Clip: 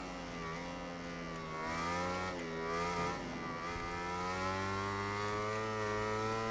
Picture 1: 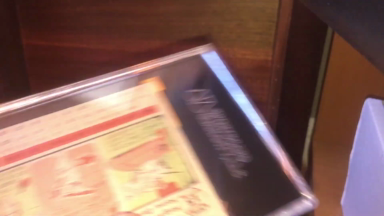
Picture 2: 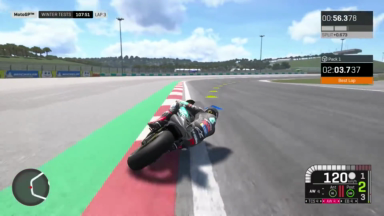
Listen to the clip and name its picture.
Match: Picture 2